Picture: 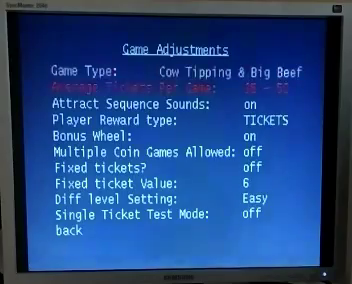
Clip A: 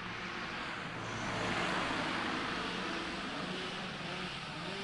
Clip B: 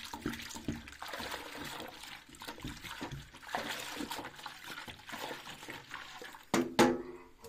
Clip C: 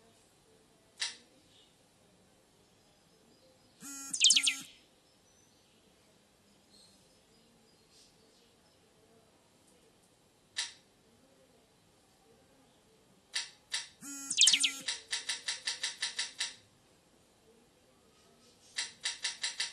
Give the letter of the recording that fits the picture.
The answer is C